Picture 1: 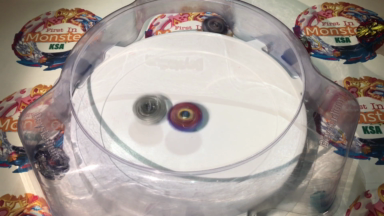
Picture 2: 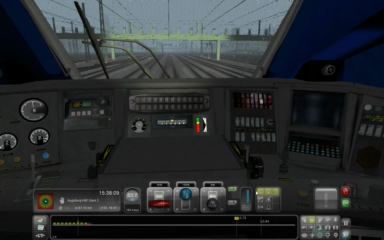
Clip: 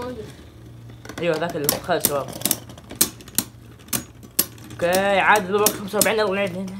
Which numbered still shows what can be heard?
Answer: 1